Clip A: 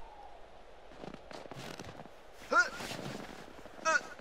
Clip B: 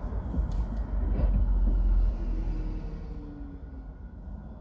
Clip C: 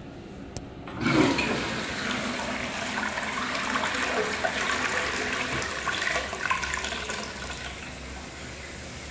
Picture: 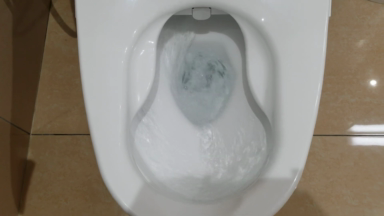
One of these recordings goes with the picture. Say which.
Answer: C